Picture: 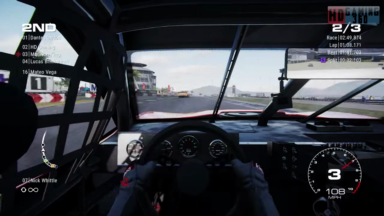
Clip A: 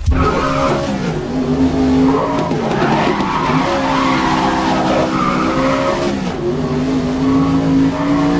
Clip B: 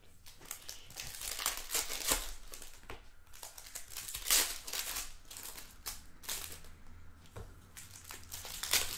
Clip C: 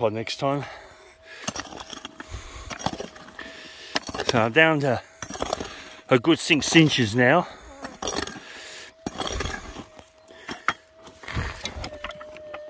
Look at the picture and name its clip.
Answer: A